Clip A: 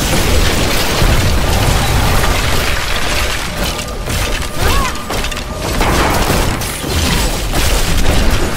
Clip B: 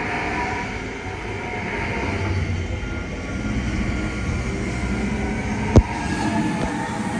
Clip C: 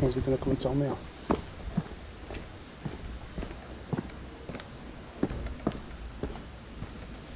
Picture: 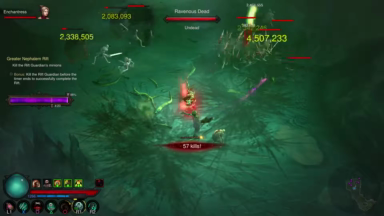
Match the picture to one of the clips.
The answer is A